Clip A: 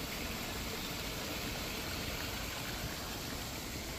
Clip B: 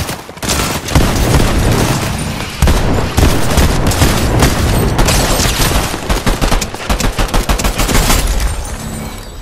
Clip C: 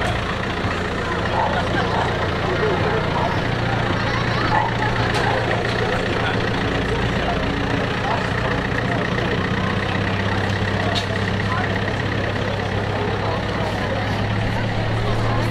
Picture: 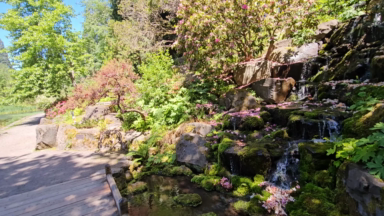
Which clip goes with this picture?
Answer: A